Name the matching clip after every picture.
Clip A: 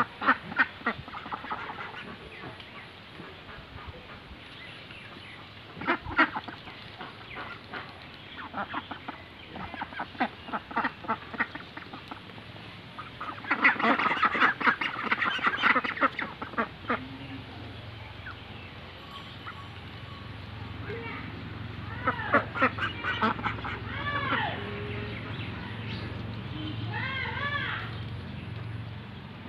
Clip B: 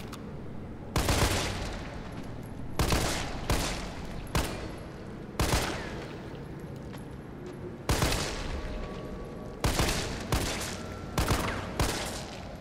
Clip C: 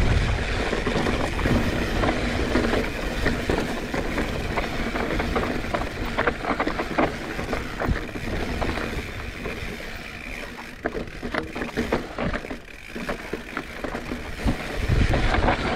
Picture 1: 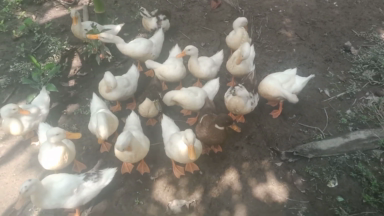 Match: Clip A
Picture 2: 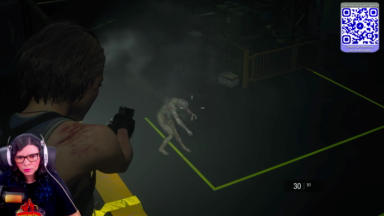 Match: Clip B